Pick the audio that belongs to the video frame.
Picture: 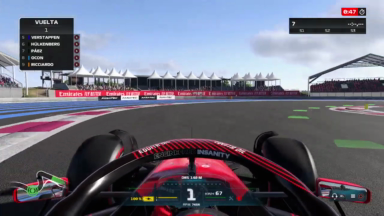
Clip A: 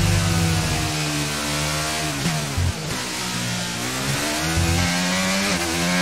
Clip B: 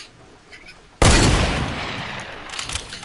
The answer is A